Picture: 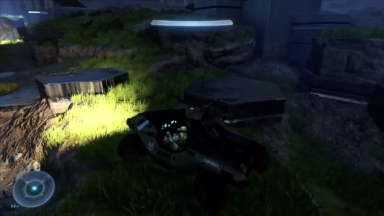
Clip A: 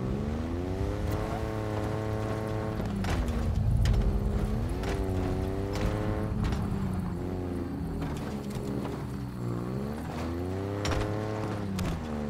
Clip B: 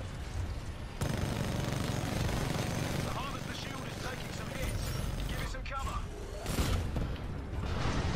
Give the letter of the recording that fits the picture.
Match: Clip A